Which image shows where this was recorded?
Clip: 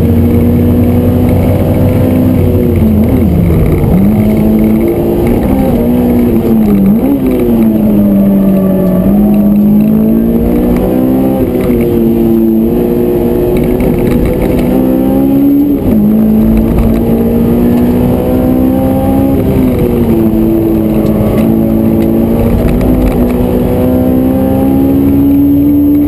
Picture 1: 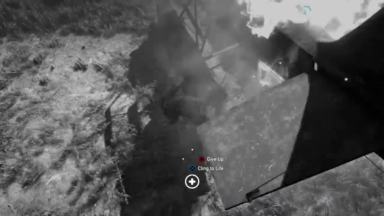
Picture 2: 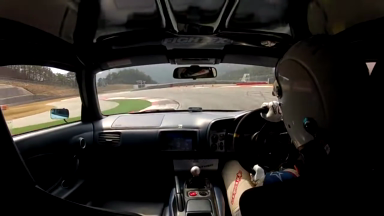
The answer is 2